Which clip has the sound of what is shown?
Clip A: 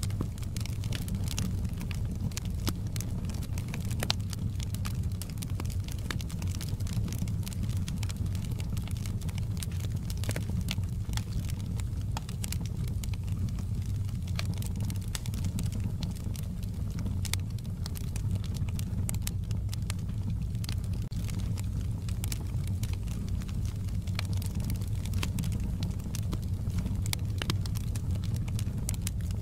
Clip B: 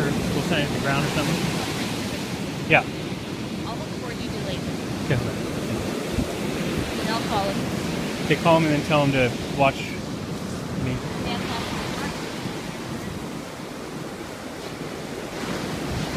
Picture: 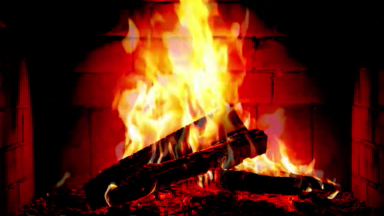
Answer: A